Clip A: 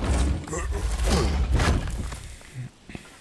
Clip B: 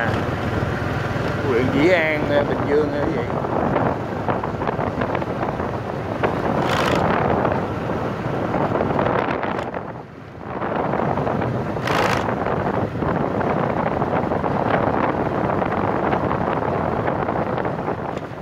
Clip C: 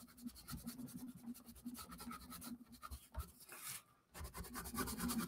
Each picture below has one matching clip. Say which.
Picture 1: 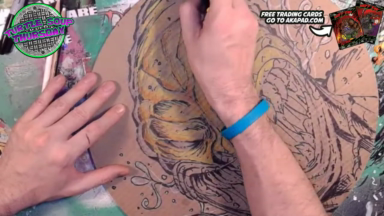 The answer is C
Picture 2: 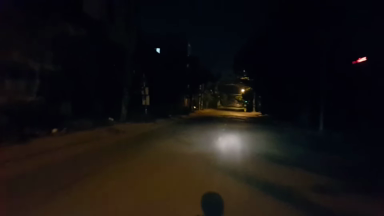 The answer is B